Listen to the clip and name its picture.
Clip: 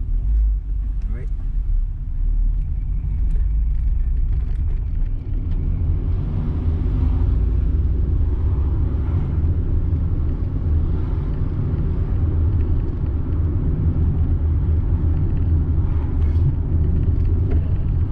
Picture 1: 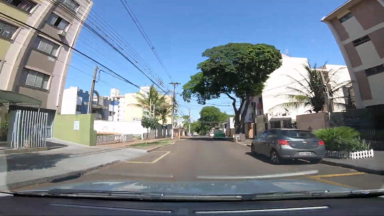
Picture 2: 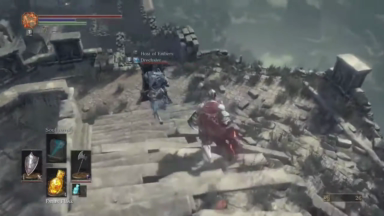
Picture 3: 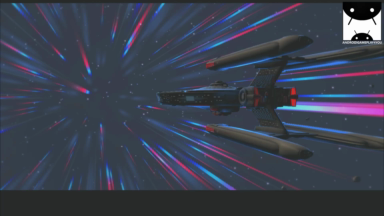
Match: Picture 1